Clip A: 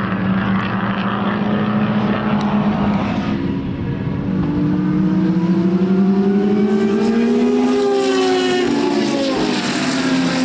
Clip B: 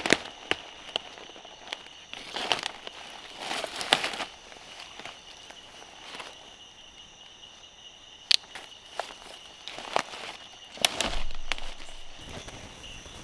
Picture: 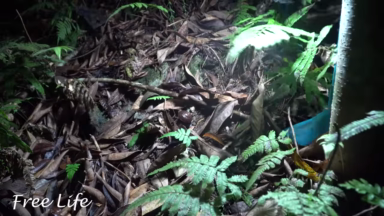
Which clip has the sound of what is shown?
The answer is B